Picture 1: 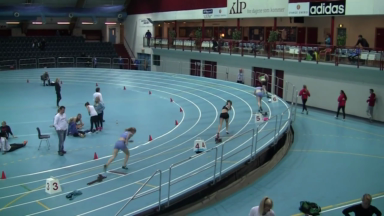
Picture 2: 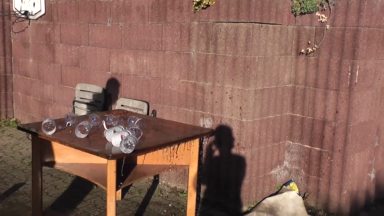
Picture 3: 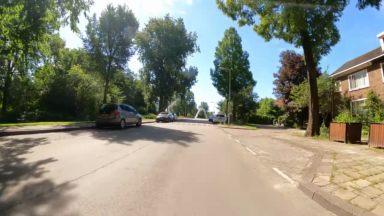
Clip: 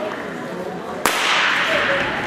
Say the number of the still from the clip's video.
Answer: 1